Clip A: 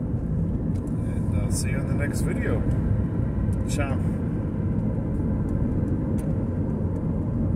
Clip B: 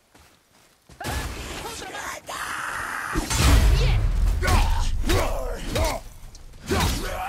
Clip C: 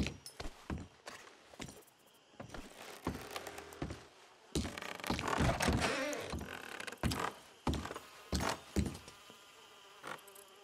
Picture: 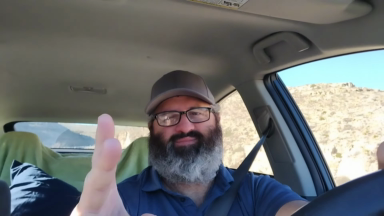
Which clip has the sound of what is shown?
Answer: A